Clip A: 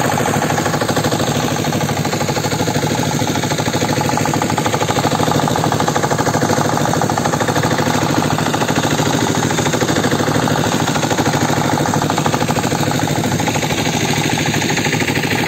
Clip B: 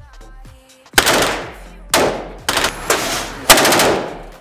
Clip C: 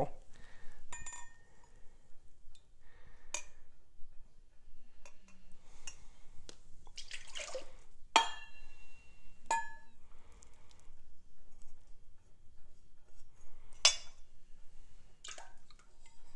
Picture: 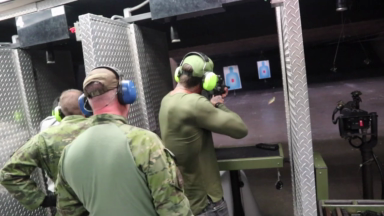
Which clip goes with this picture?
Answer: B